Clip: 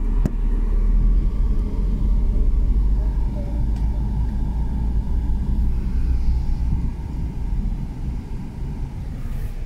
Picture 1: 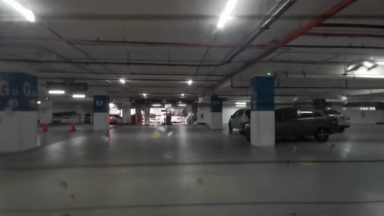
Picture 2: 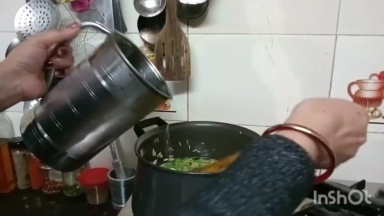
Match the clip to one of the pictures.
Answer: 1